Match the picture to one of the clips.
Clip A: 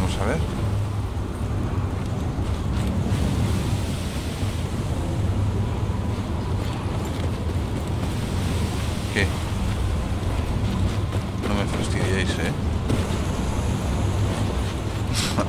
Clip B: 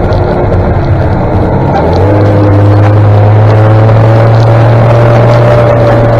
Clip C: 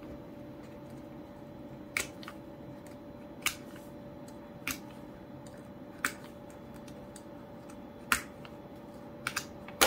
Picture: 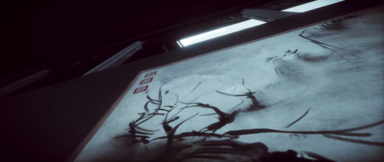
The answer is A